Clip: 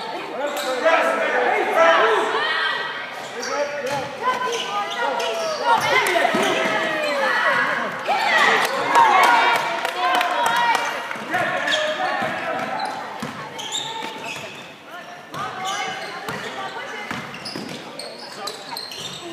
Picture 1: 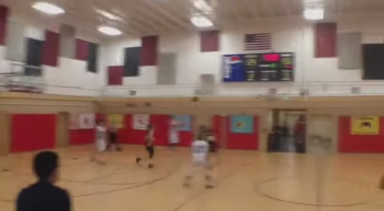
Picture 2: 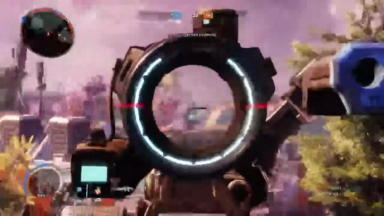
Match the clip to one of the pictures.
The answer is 1